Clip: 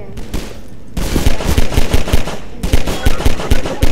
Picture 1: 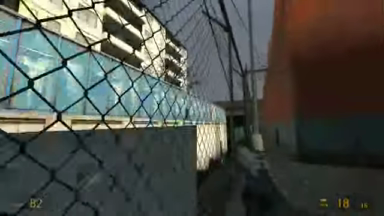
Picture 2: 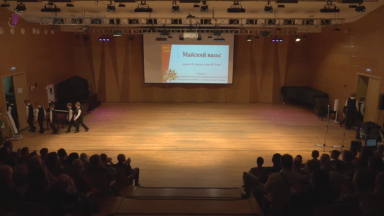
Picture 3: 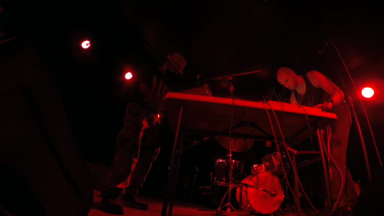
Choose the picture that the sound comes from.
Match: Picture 1